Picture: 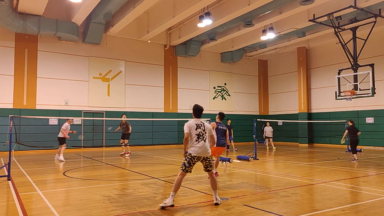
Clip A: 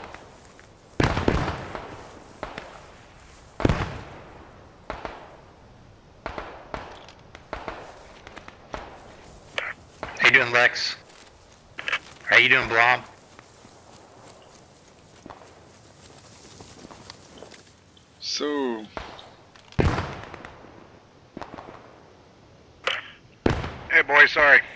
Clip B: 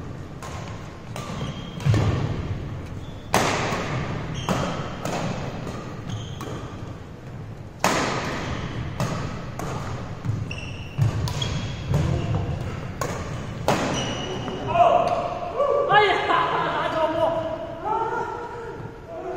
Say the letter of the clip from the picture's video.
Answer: B